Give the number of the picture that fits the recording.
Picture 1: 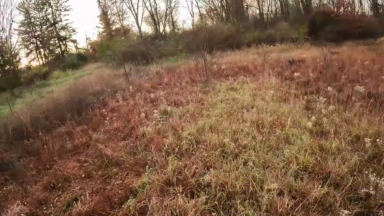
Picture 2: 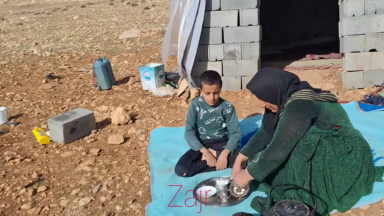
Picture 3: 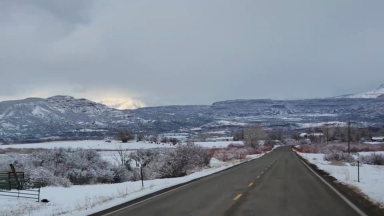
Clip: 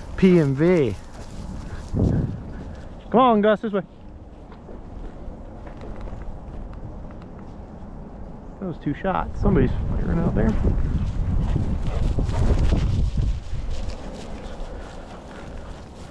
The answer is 1